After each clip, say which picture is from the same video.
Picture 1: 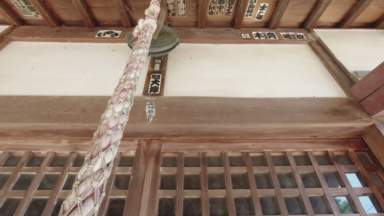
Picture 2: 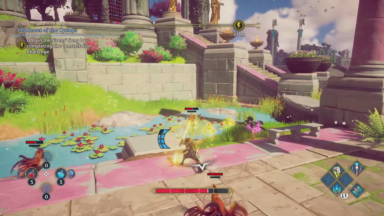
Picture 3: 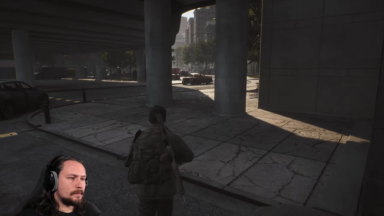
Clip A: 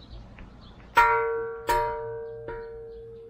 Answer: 1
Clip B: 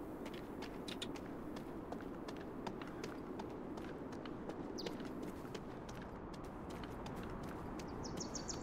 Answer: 3